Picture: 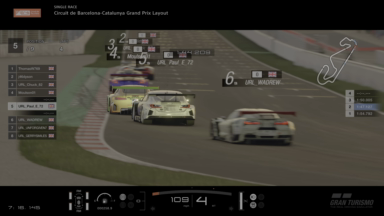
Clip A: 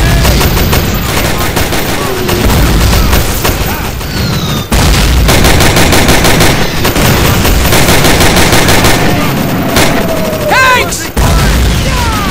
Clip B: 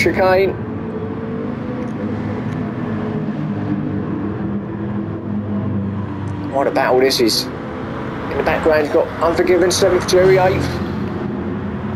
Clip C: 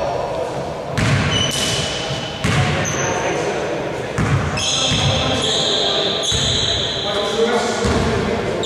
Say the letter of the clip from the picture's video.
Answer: B